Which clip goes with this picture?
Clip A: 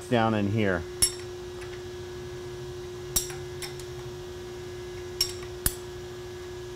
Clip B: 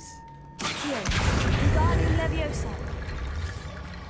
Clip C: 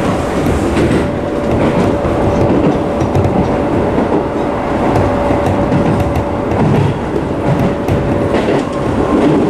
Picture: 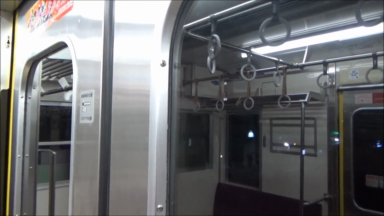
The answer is C